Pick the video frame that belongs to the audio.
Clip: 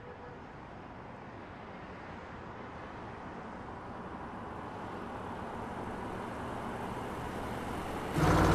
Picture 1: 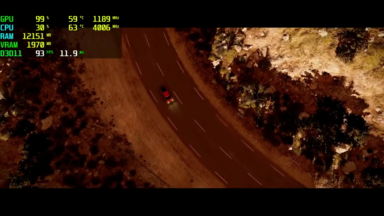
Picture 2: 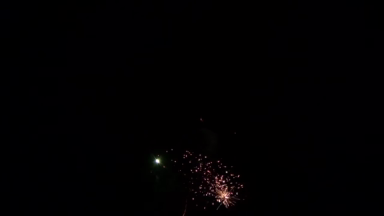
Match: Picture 1